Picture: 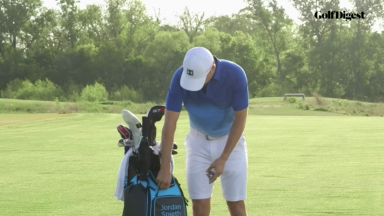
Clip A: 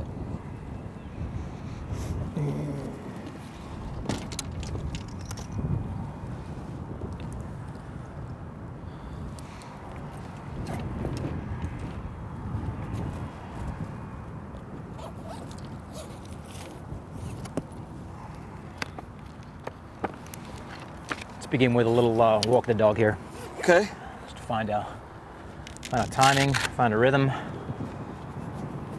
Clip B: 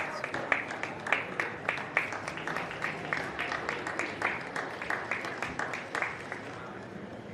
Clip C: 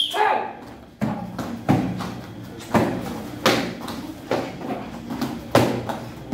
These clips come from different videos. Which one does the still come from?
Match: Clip A